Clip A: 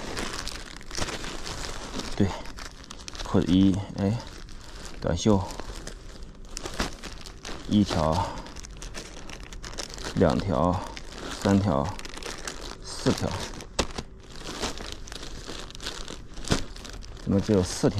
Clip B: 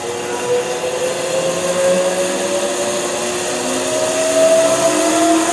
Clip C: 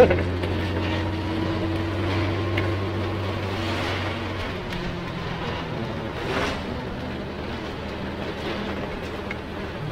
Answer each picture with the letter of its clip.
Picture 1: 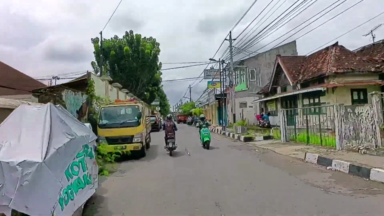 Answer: C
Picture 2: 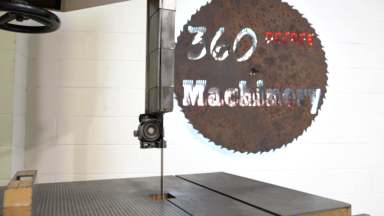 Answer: B